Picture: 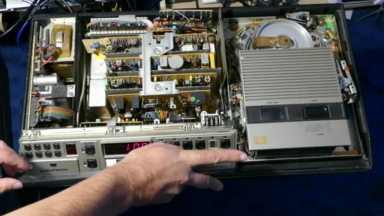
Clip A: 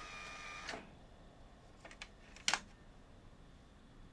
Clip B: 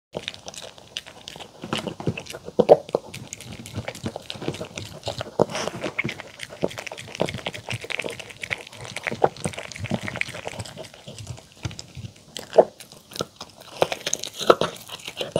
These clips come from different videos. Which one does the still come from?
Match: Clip A